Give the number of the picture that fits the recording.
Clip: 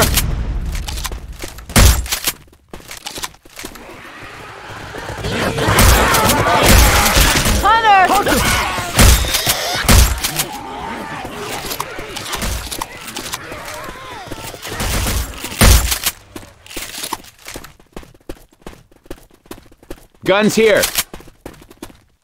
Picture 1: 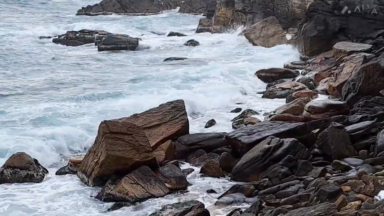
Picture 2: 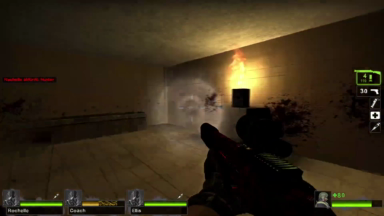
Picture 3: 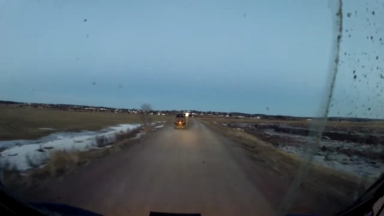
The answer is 2